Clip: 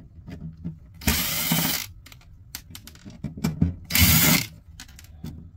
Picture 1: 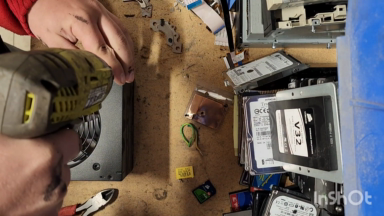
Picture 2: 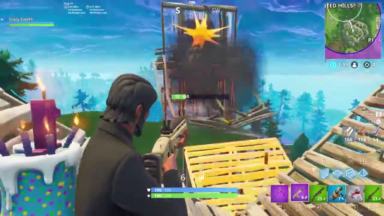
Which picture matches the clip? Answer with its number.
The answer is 1